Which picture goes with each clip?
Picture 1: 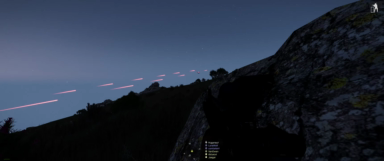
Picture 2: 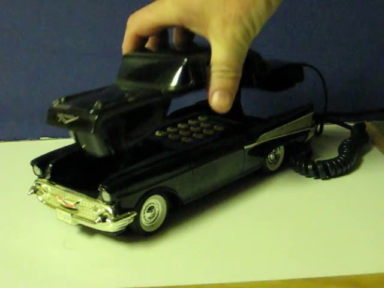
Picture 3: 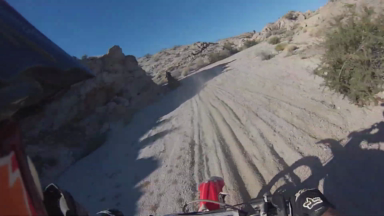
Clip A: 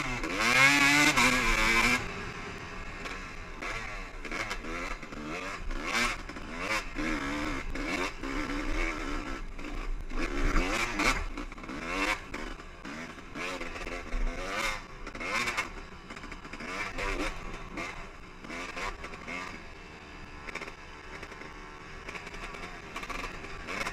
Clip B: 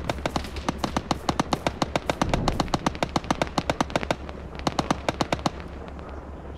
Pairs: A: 3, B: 1